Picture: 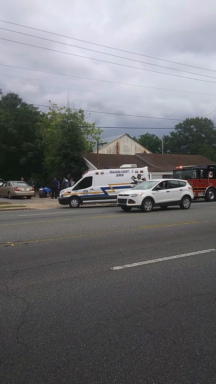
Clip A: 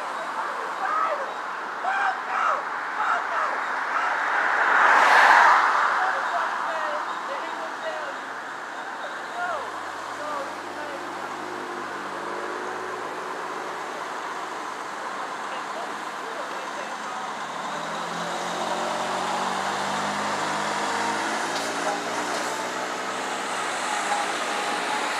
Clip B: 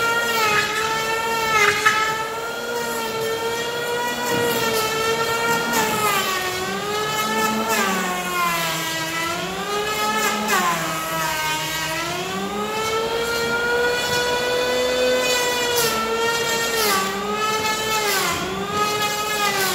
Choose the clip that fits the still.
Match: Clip A